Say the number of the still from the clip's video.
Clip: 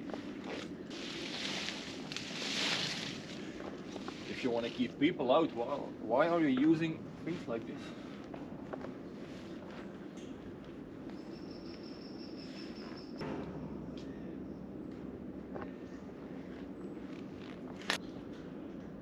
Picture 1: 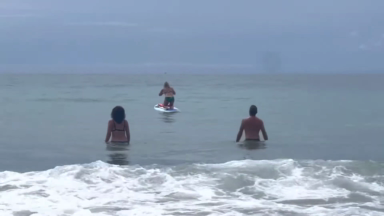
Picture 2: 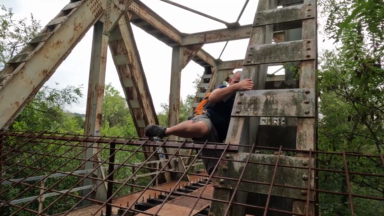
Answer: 2